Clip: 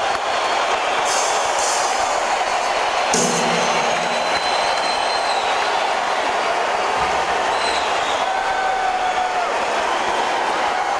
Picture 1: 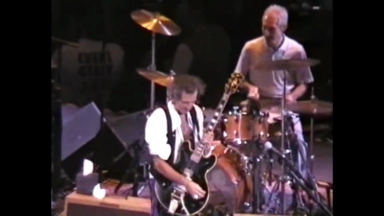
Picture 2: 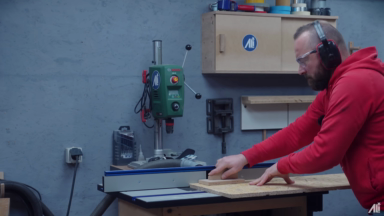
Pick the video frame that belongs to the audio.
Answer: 1